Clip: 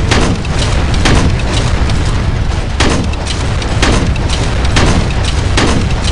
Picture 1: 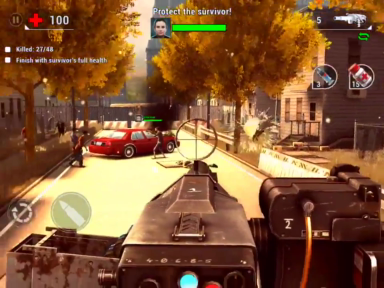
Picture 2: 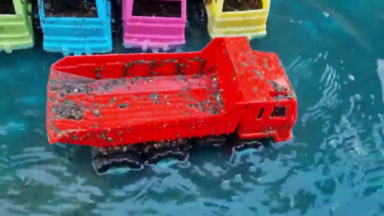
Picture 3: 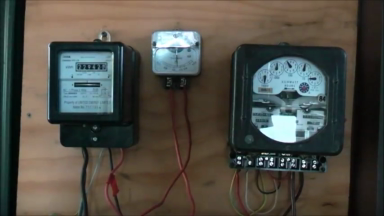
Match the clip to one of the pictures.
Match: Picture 1